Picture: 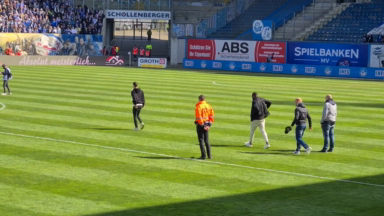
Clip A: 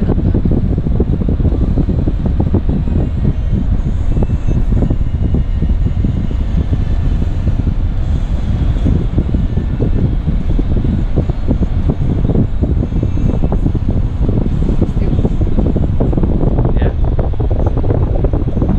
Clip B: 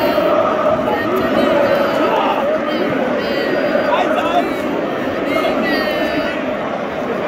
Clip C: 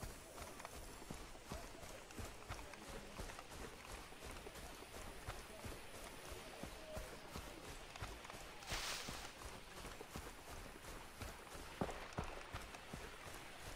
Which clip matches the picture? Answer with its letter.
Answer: B